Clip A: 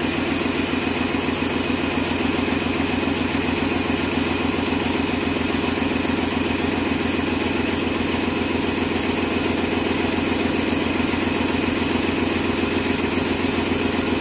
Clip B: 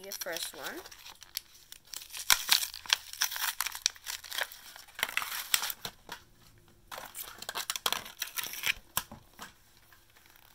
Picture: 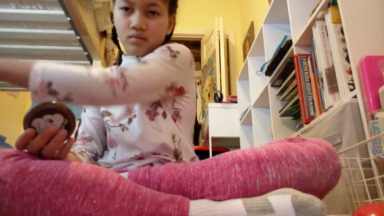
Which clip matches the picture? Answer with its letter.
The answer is B